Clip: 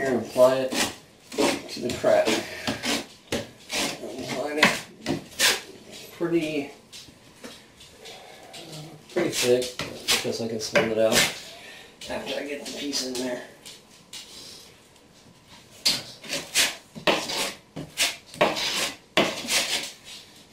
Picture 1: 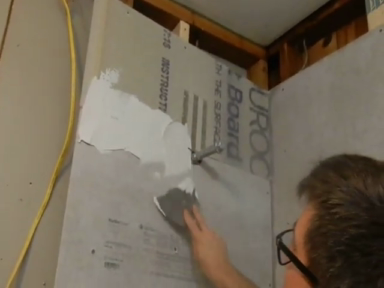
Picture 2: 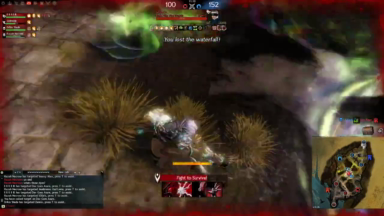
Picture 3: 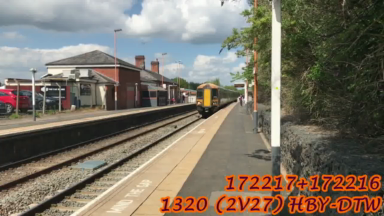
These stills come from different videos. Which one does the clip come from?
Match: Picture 1